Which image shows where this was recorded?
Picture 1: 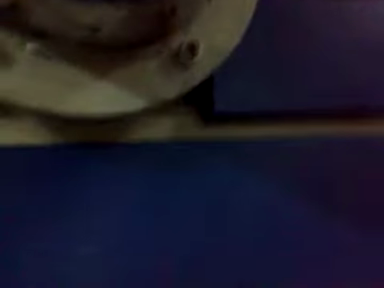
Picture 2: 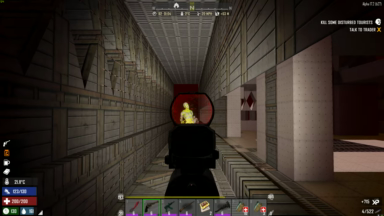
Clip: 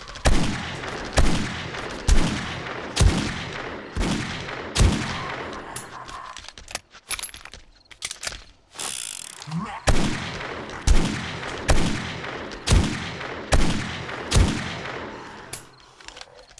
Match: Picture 2